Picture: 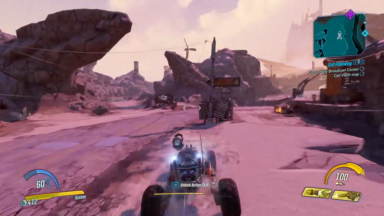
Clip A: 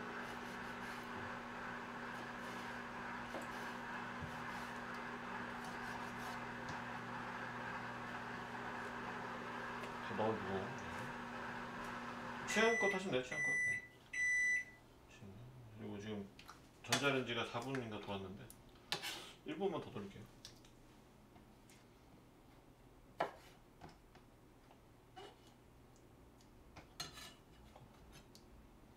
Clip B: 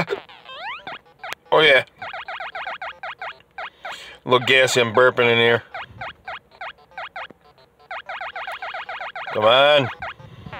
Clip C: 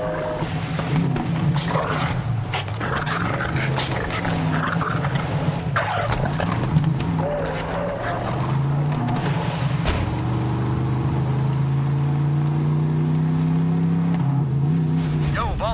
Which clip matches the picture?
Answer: C